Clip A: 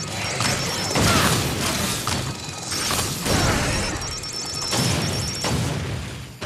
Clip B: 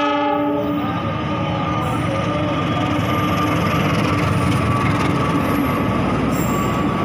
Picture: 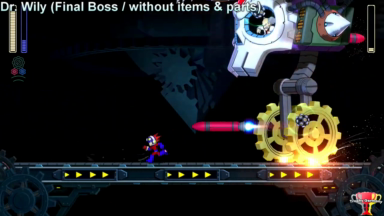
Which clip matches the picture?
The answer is A